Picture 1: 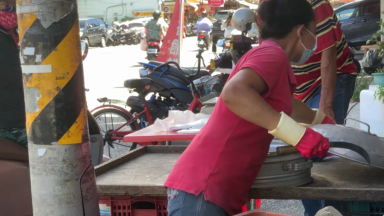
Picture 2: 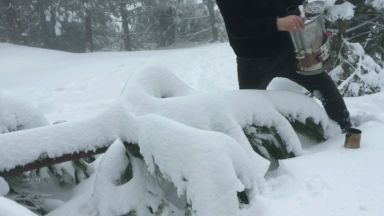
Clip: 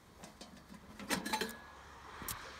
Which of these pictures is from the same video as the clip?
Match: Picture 2